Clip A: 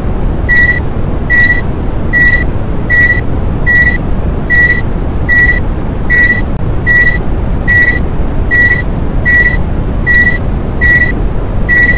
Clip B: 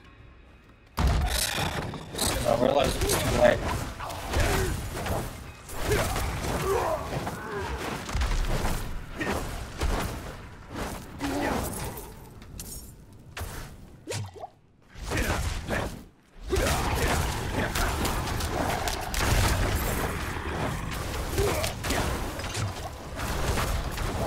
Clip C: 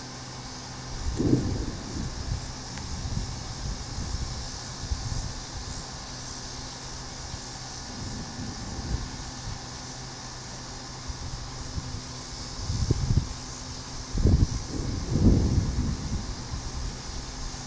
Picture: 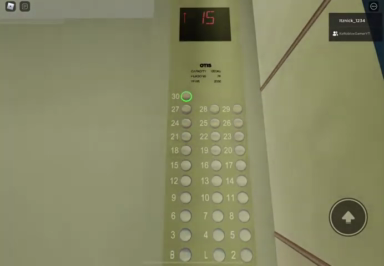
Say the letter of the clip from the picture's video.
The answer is A